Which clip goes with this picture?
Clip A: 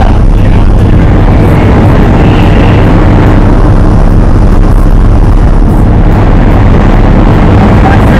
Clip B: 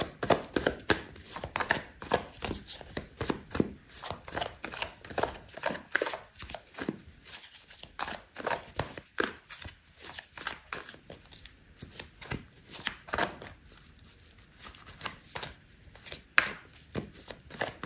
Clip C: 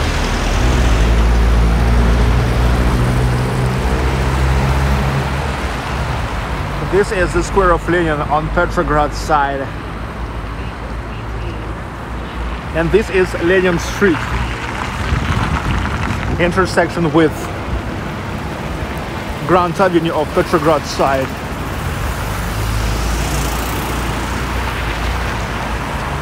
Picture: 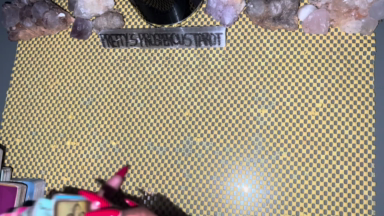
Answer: B